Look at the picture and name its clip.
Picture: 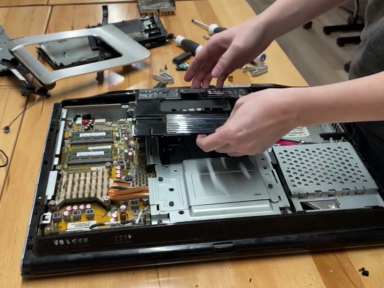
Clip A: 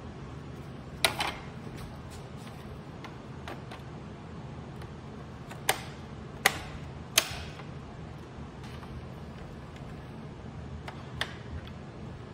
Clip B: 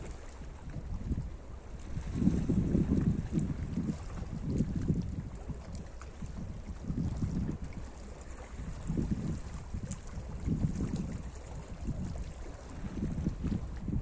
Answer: A